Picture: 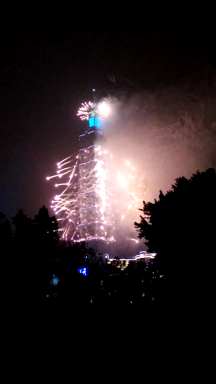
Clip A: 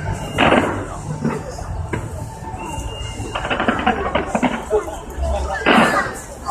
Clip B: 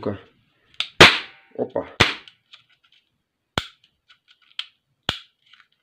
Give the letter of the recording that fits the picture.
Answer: A